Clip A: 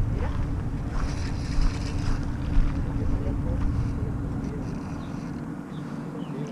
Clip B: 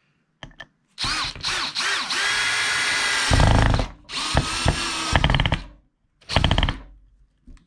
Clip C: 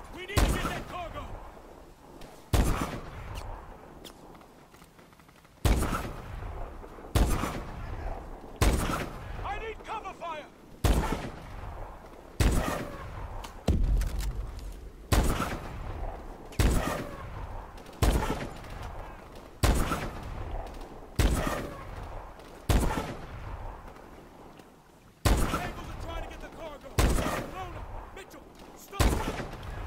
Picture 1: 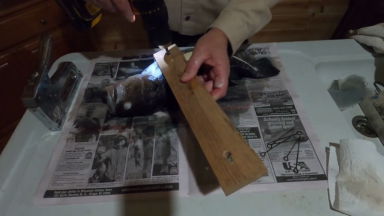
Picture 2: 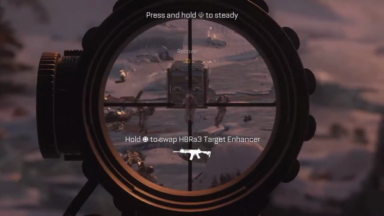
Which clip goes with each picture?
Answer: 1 B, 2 C